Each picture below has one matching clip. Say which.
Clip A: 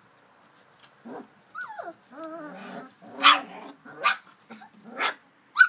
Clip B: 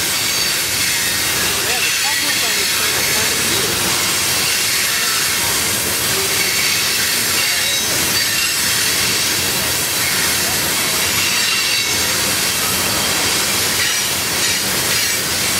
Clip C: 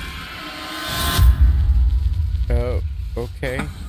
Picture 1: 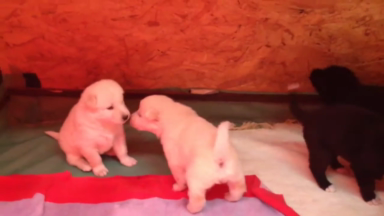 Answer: A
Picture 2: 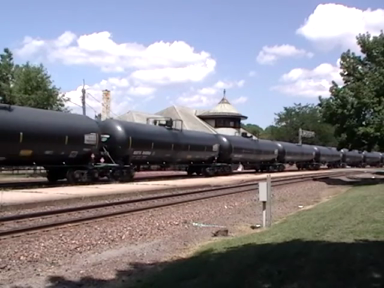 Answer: B